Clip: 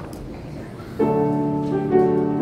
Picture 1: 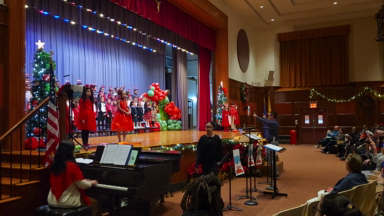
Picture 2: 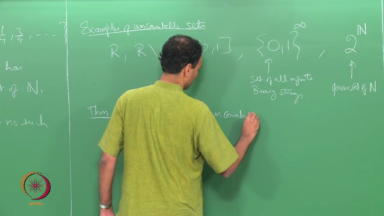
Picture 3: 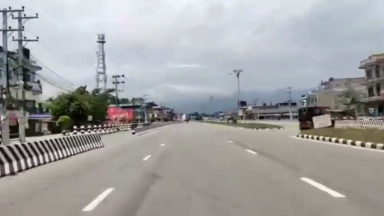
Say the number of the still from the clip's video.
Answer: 1